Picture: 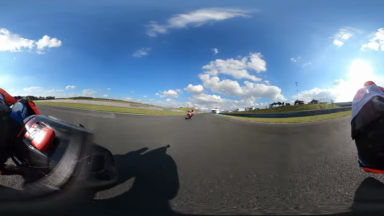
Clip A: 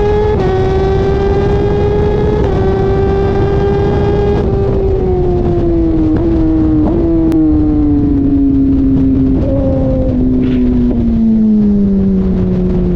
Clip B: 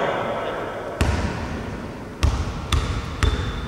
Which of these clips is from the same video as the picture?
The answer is A